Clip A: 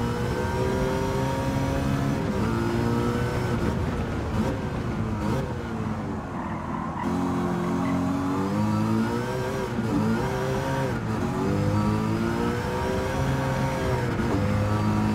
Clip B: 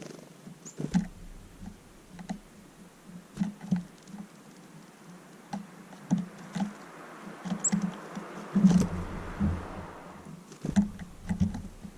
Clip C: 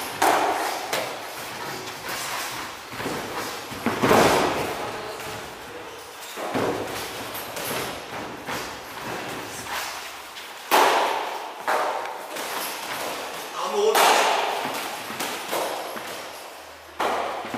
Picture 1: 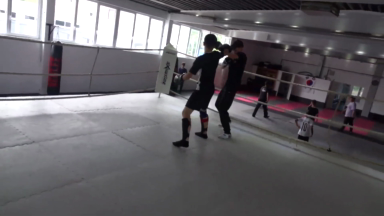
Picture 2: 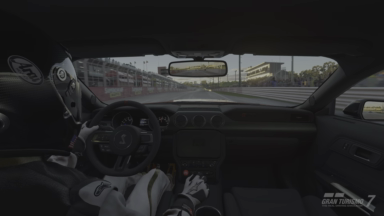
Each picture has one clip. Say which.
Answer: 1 C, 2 A